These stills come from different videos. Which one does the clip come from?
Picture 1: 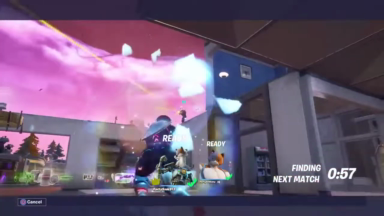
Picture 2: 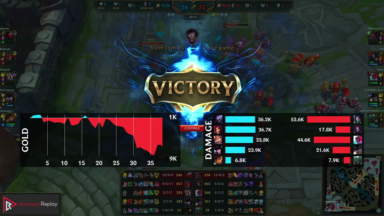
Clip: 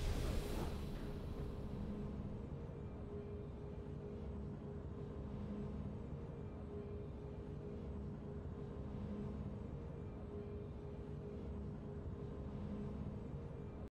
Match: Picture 2